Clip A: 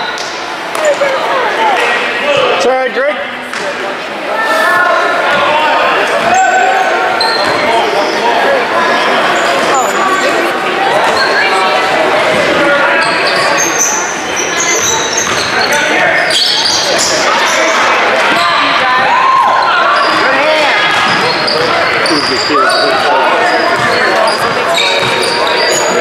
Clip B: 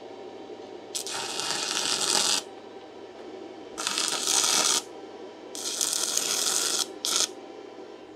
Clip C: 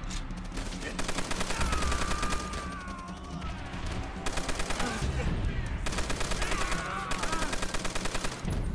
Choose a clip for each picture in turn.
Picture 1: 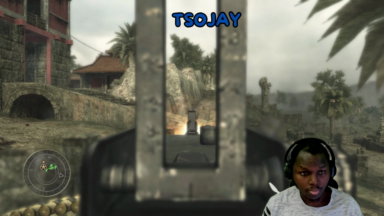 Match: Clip C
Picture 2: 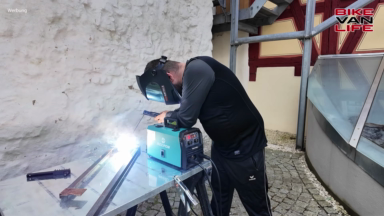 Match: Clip B